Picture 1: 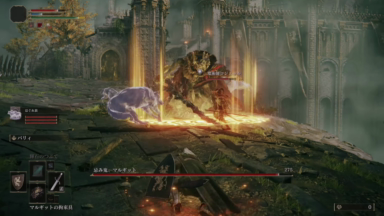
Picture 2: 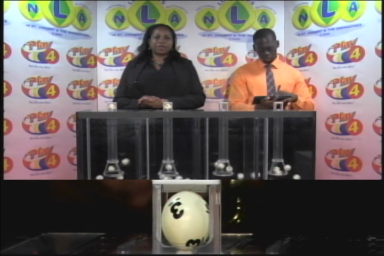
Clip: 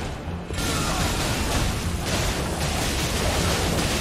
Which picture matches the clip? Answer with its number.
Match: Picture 1